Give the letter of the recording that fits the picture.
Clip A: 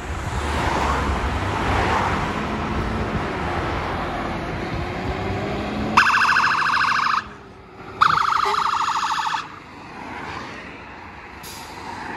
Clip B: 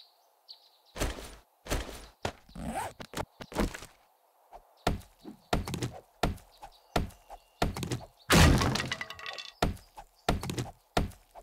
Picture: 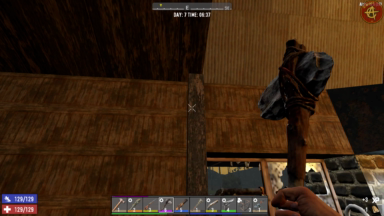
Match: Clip B